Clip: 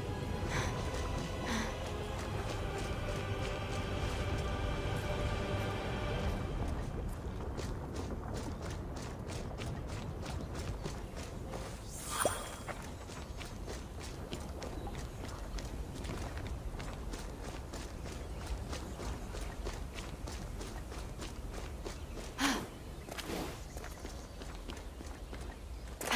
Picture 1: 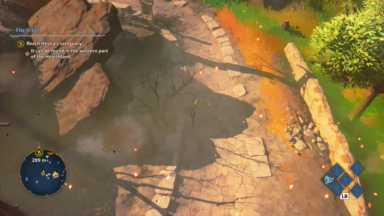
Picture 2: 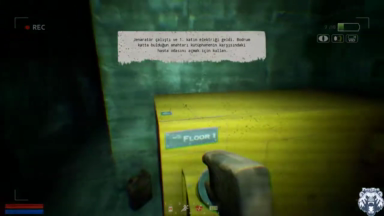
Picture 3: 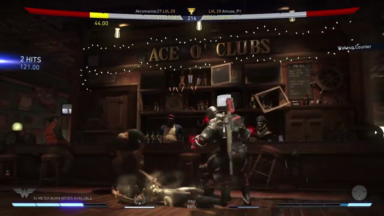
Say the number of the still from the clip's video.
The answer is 1